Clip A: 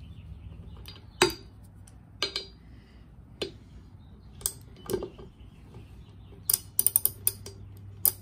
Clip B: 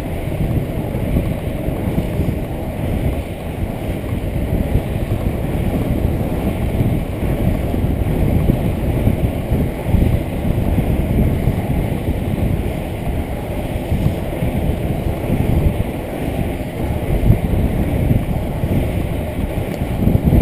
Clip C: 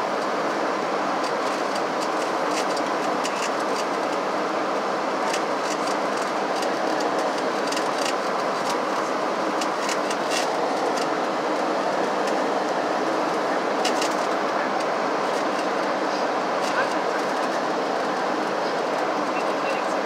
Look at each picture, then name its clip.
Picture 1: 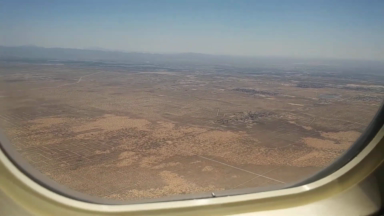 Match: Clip C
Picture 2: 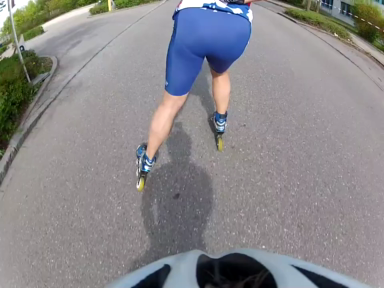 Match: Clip B